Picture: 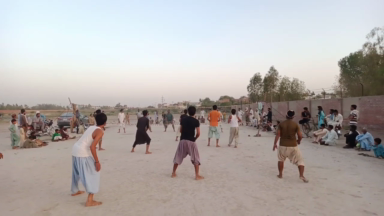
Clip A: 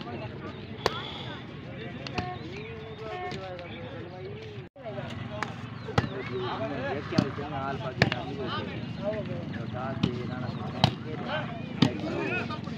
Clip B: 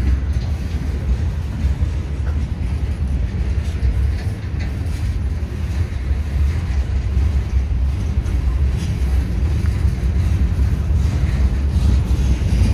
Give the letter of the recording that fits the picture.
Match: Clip A